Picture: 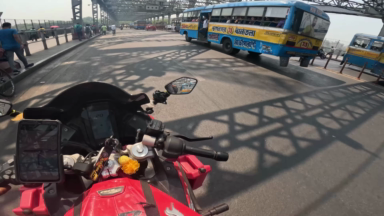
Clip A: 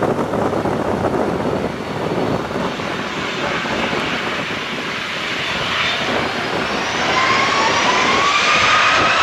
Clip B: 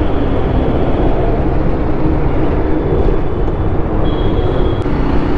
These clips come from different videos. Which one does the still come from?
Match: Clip B